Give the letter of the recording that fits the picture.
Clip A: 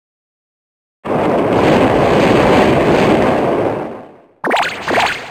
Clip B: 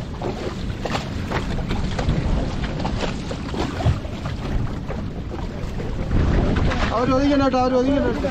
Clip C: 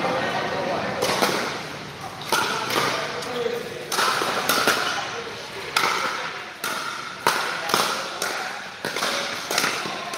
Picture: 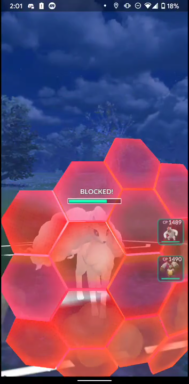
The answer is A